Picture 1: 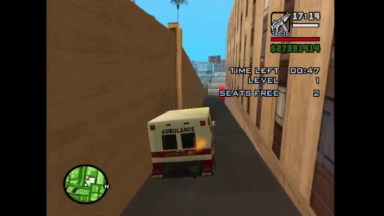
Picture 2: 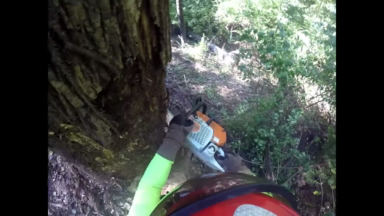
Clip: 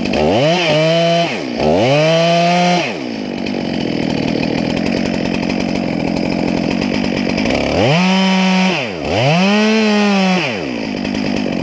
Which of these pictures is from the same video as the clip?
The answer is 2